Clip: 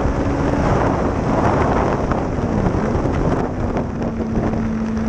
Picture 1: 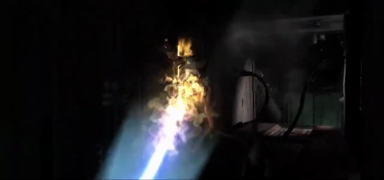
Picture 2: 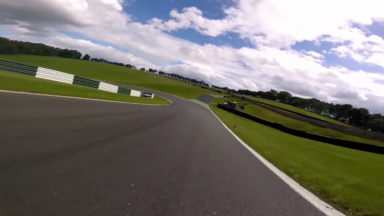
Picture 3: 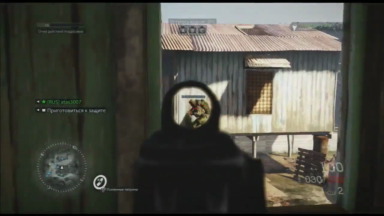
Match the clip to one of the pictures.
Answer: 2